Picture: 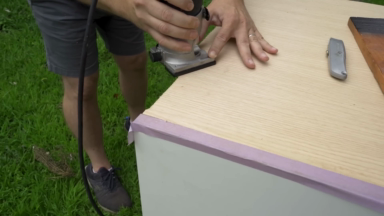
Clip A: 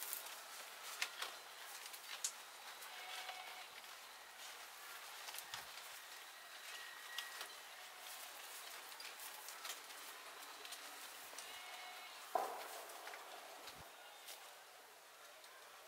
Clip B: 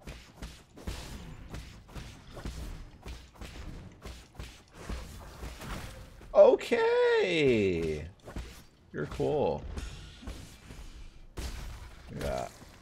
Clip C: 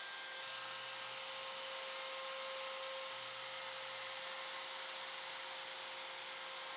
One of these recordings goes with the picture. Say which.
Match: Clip C